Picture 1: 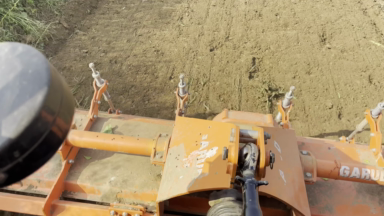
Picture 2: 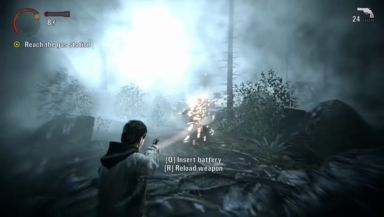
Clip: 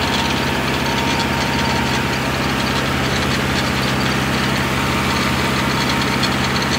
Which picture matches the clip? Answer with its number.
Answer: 1